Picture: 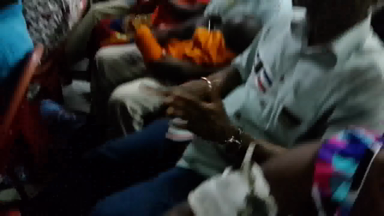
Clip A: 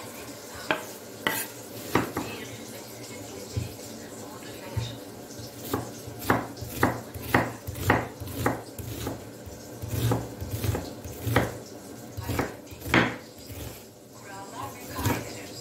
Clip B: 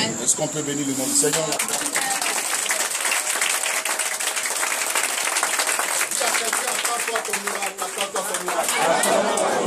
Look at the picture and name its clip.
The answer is B